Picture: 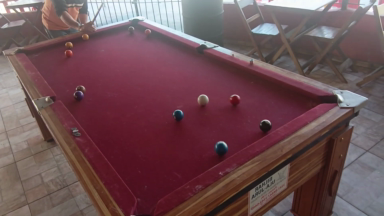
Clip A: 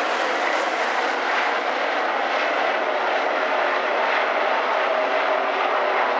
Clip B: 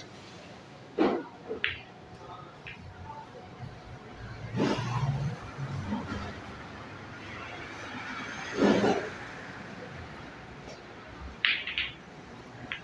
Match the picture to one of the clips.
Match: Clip B